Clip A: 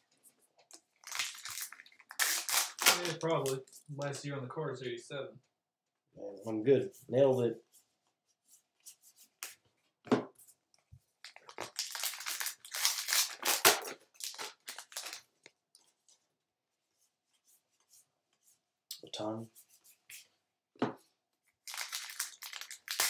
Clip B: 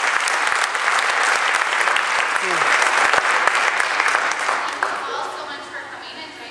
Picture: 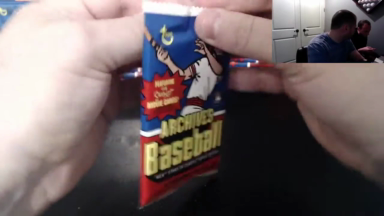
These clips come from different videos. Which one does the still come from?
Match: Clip A